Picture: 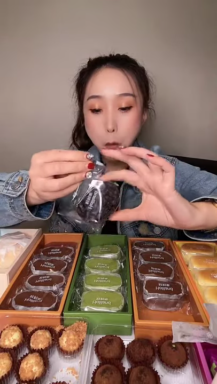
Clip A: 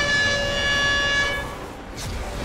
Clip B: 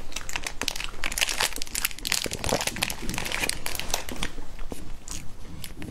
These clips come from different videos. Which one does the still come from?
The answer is B